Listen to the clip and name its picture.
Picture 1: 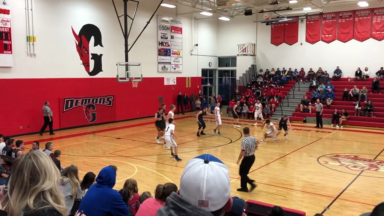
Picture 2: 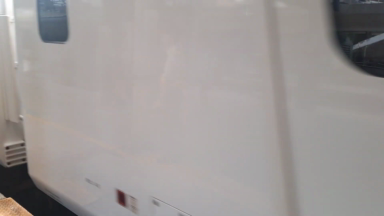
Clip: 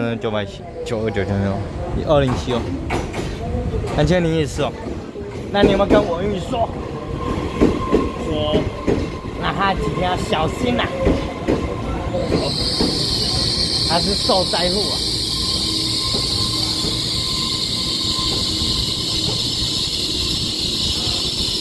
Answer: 2